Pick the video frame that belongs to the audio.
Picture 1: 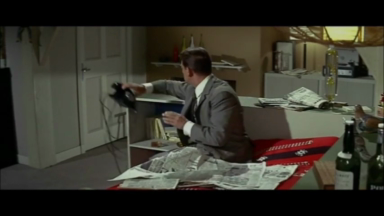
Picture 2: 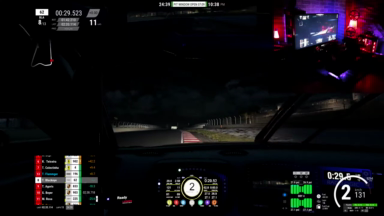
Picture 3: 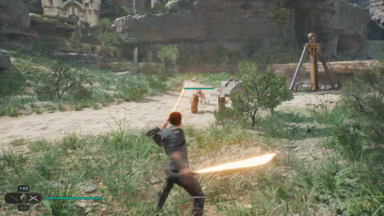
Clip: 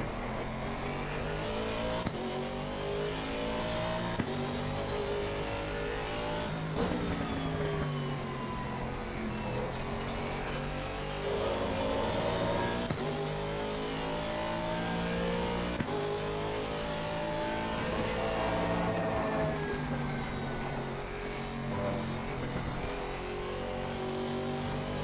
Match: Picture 2